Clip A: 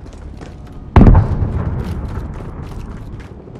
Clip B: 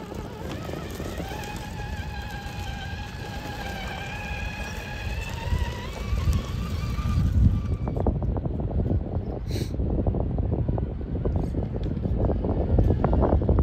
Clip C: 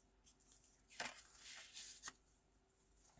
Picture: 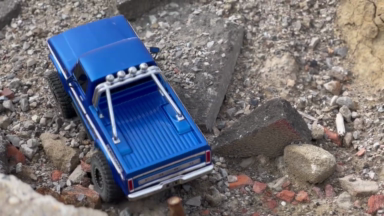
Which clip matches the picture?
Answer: B